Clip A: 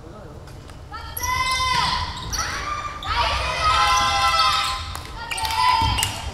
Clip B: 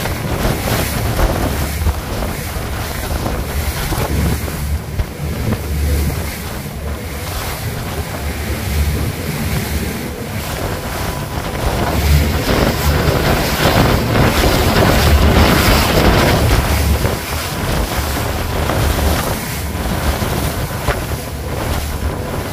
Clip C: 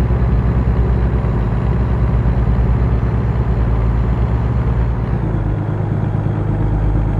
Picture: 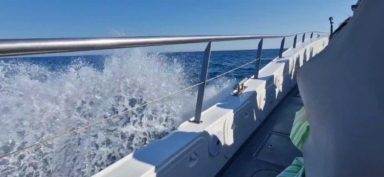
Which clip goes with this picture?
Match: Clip B